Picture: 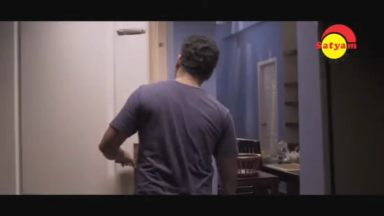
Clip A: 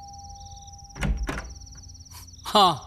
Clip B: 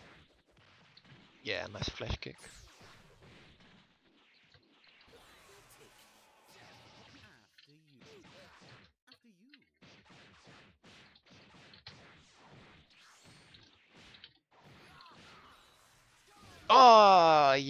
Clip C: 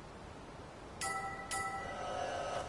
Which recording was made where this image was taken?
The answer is A